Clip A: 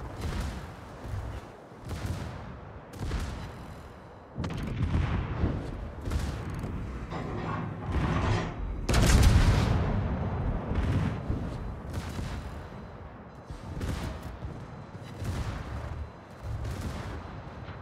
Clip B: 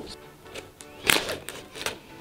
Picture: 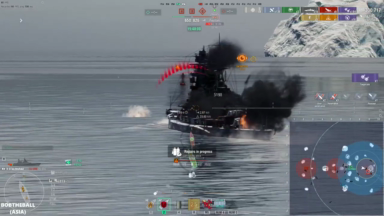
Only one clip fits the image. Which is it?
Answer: A